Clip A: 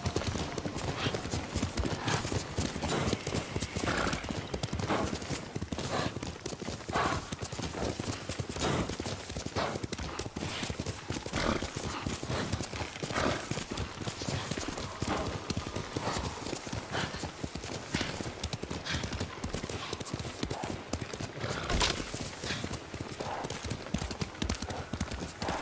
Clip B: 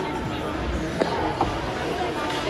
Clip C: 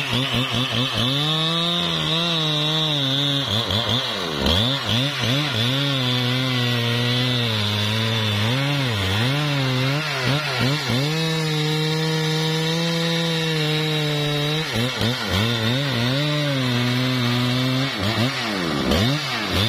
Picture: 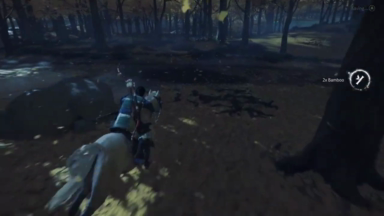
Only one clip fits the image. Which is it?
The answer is A